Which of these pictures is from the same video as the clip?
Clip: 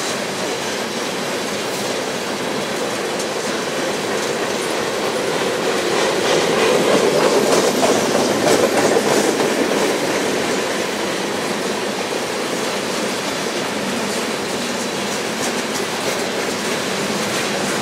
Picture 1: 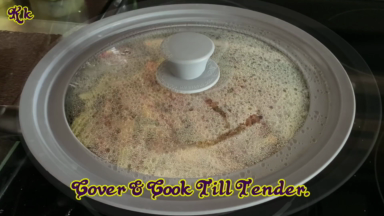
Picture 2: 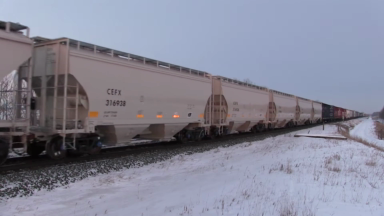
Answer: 2